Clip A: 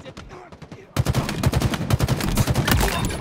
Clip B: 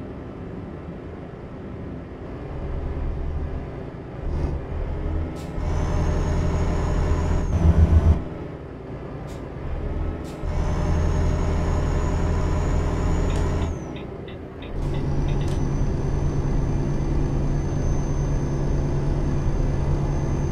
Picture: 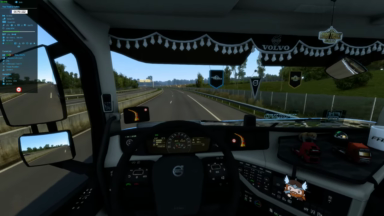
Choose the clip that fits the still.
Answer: B